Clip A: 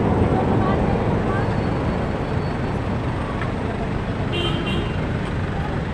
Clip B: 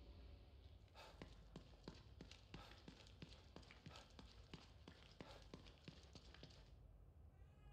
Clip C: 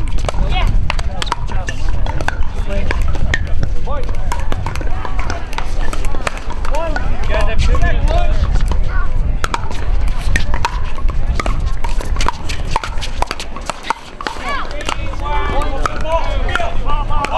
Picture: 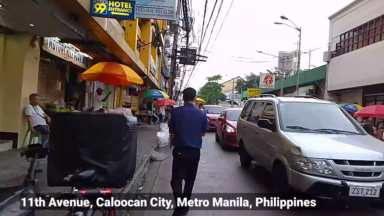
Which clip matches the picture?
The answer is A